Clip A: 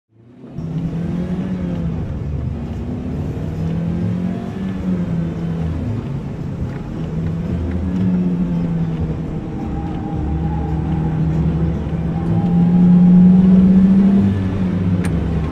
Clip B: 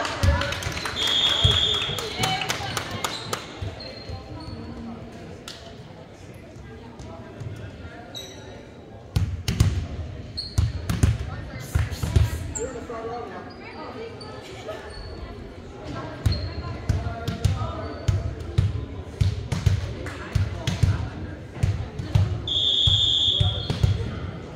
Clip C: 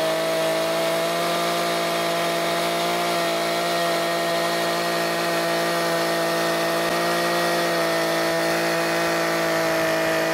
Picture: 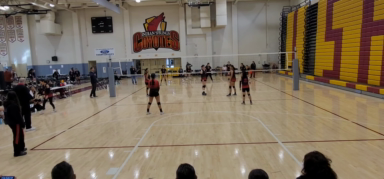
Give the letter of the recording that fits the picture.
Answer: B